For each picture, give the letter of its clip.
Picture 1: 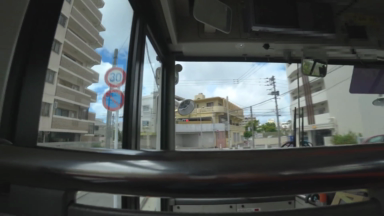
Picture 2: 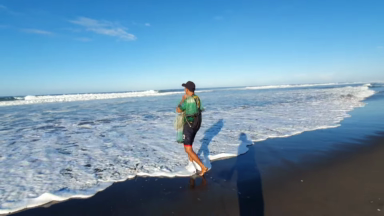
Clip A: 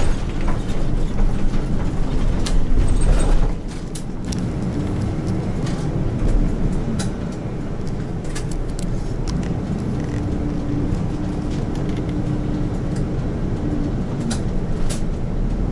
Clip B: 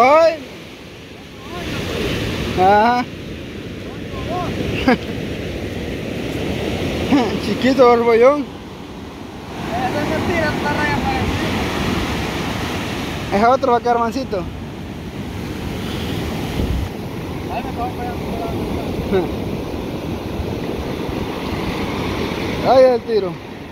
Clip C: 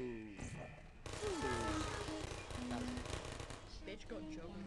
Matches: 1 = A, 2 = B